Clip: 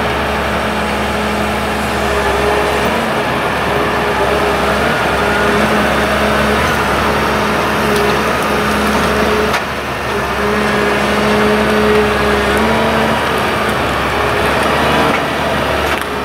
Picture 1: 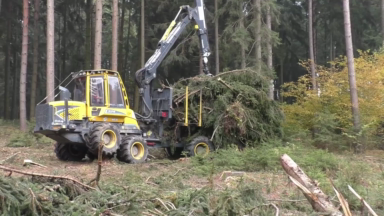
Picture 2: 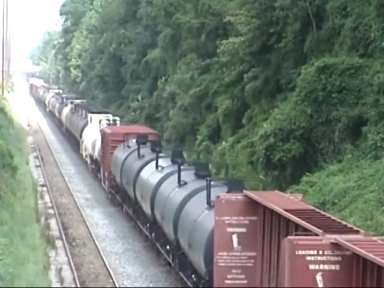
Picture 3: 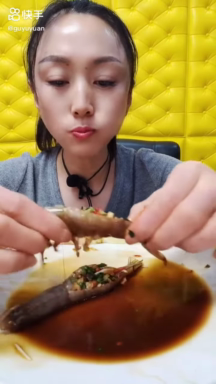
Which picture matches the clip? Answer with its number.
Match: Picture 1